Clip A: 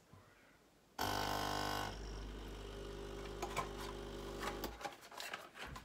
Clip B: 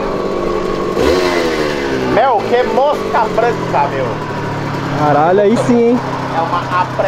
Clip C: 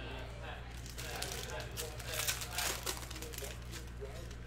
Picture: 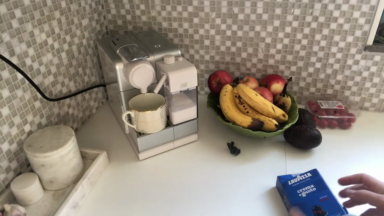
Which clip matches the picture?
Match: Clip A